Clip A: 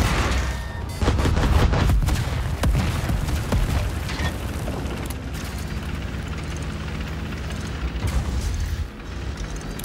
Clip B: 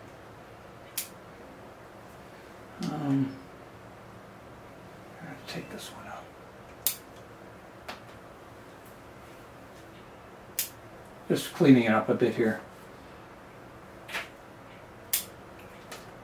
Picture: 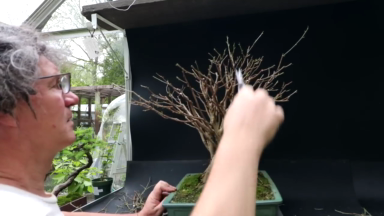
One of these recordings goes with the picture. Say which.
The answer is B